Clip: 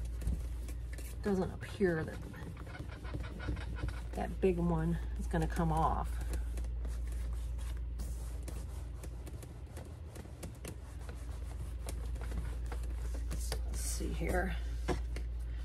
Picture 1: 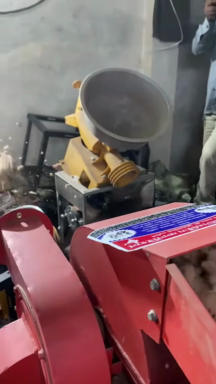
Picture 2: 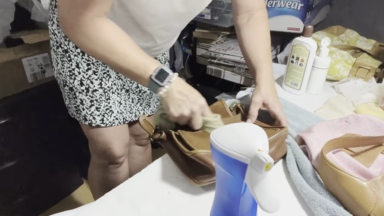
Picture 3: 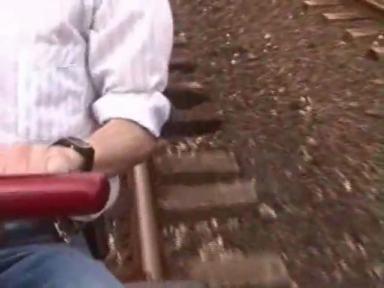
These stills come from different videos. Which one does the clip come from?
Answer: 2